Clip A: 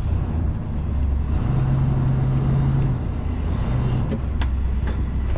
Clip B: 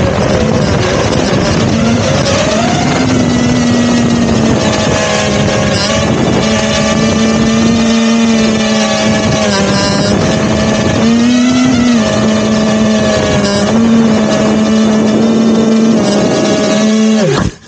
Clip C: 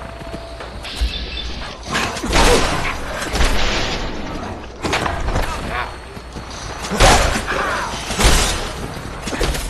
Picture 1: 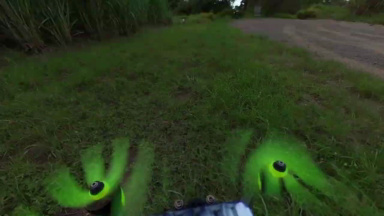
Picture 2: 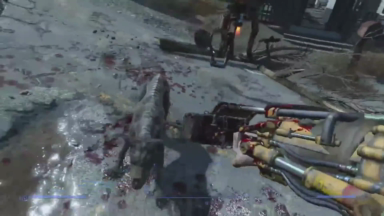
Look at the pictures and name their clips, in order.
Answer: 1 B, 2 C